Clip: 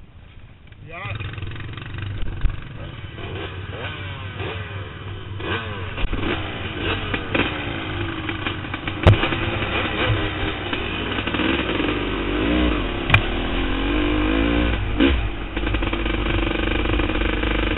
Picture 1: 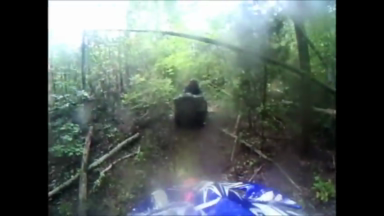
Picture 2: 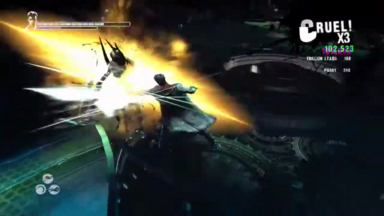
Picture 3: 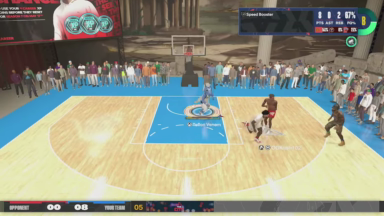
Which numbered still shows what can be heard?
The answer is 1